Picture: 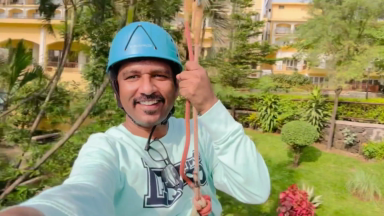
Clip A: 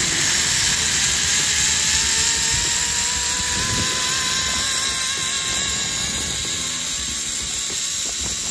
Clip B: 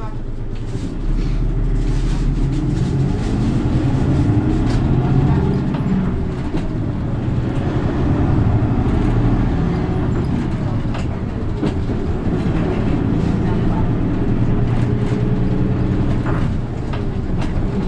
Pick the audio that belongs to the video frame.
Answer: A